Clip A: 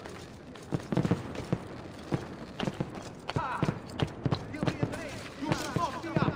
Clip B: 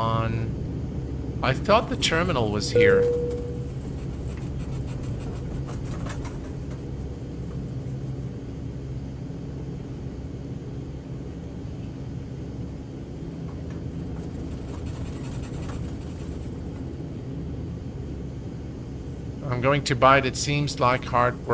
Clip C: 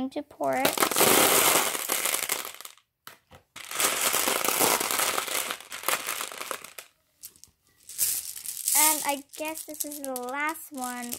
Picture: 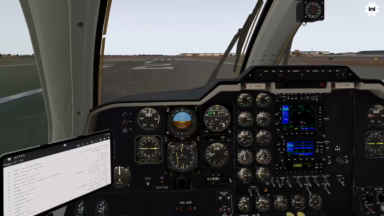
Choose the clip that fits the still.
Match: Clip B